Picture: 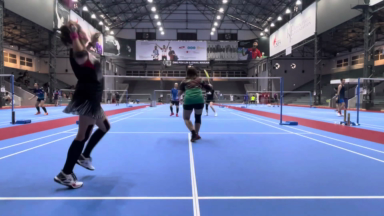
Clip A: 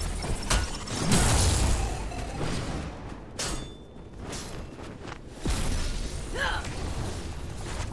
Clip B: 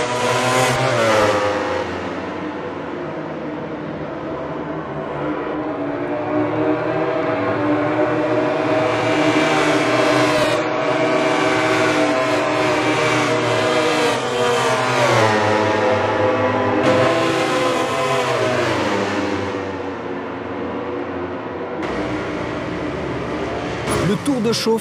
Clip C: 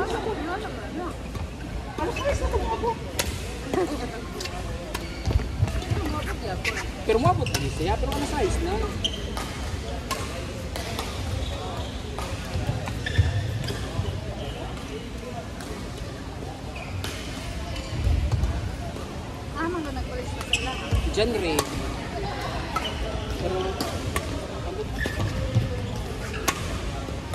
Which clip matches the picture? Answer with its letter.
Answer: C